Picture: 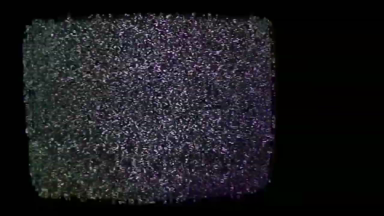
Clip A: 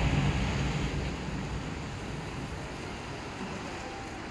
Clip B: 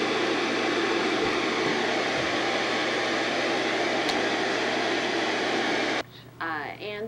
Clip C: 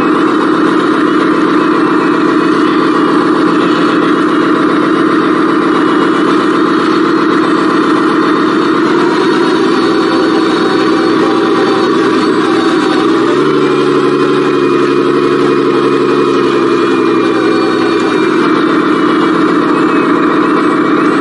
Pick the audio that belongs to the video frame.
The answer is B